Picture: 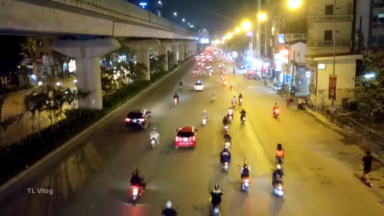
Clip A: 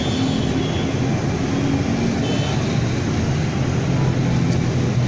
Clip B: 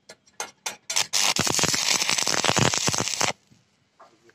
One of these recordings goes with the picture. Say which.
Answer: A